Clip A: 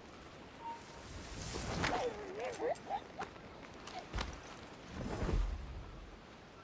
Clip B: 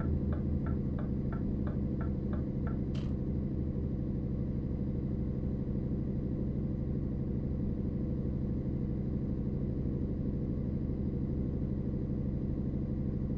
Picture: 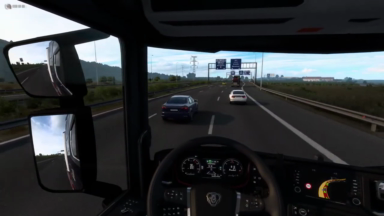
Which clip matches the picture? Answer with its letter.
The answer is B